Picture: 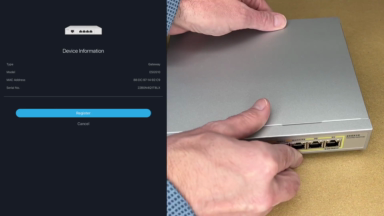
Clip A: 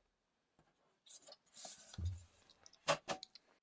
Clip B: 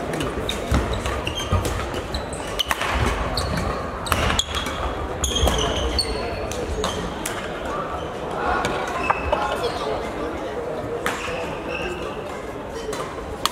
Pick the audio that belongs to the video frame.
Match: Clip A